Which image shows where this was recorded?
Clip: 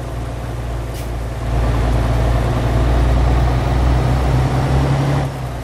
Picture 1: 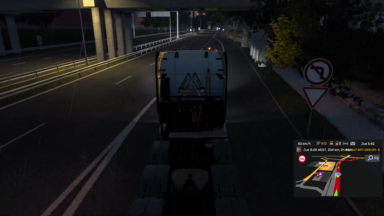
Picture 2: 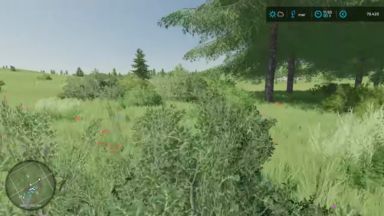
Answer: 1